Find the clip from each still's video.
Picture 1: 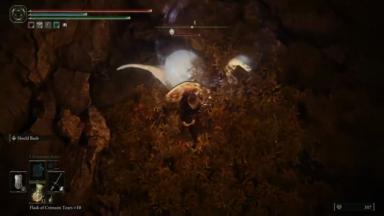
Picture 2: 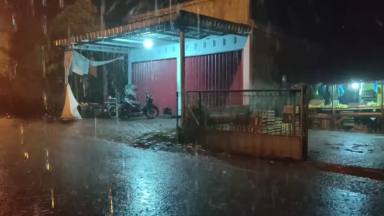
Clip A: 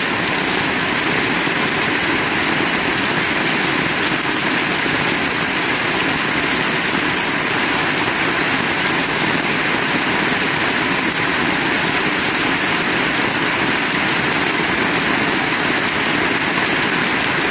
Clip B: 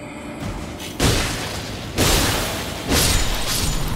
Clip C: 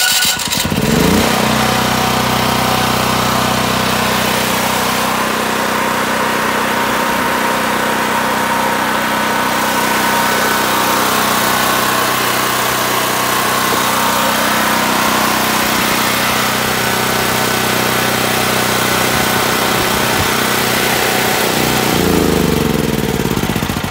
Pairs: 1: B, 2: A